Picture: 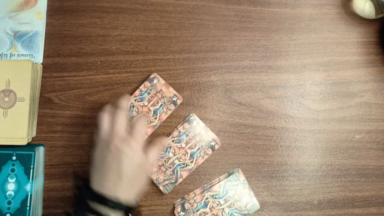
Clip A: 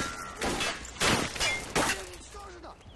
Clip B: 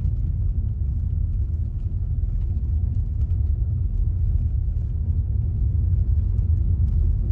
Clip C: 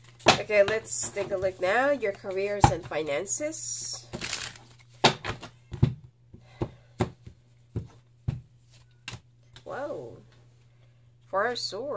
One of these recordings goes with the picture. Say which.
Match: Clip C